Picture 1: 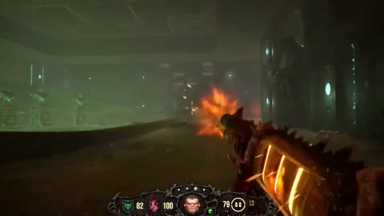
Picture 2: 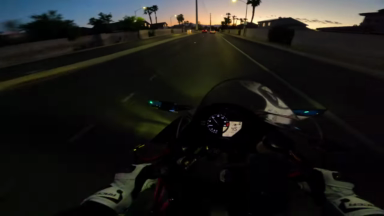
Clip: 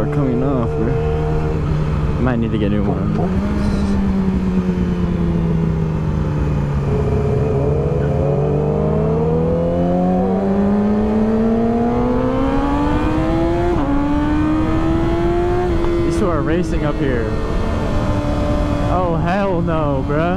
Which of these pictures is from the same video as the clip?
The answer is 2